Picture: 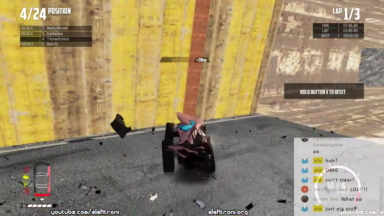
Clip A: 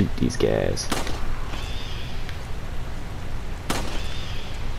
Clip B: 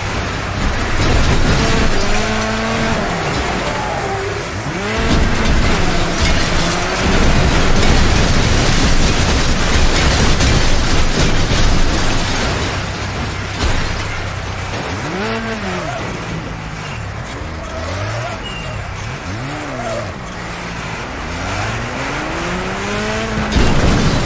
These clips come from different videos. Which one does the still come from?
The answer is B